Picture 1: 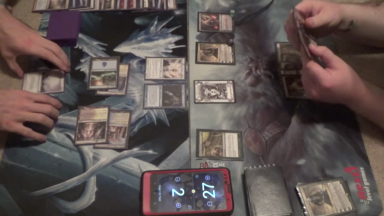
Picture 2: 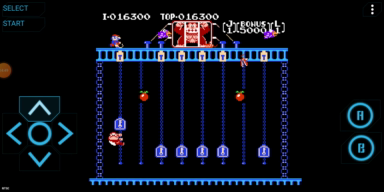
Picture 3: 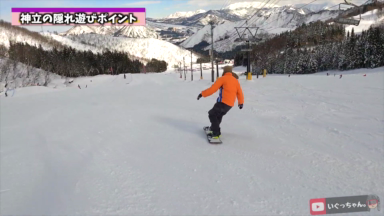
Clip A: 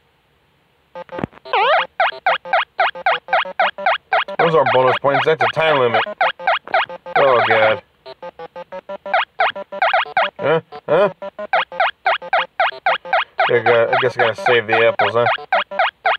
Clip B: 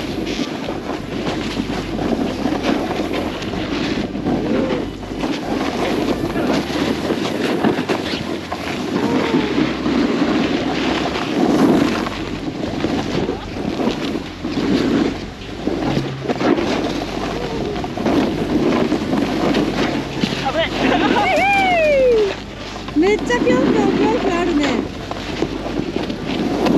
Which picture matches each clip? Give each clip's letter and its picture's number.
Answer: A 2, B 3